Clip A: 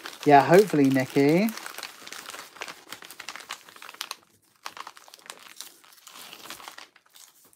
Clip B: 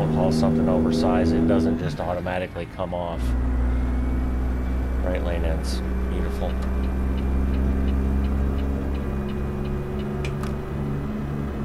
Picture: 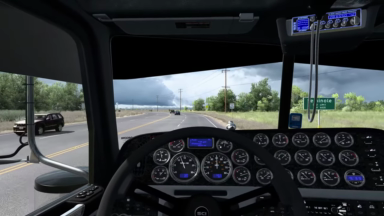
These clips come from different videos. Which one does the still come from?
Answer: B